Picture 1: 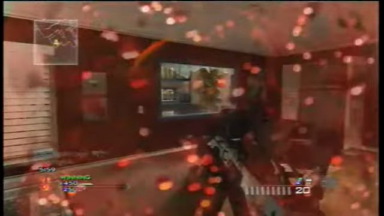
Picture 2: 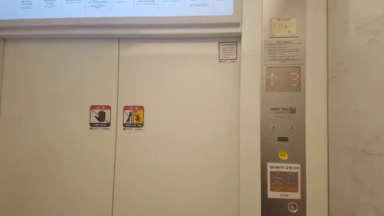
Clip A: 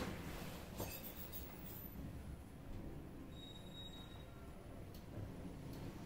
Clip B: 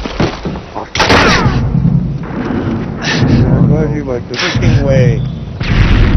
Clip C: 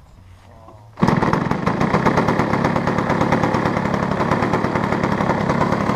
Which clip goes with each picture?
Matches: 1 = B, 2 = A